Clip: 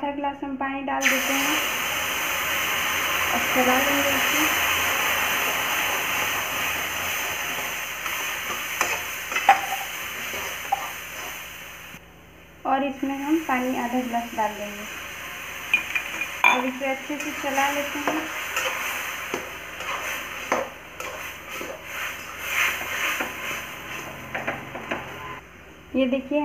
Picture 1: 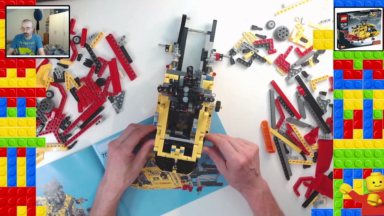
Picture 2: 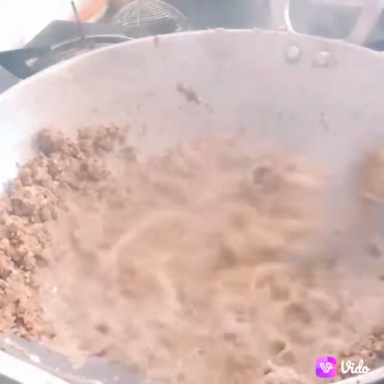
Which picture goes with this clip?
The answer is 2